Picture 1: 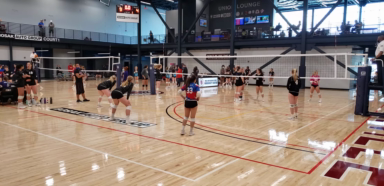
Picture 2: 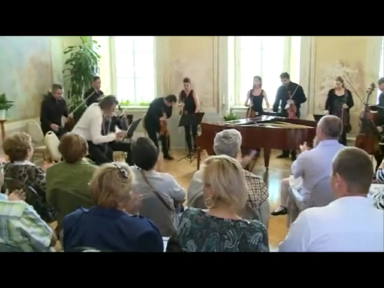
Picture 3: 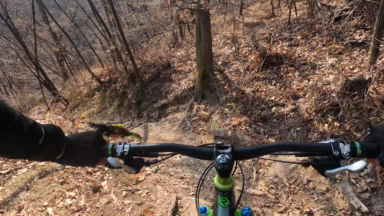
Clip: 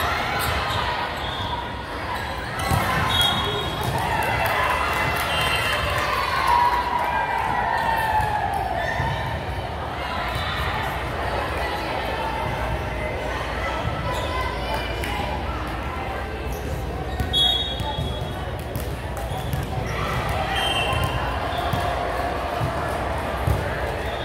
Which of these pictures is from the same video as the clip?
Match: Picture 1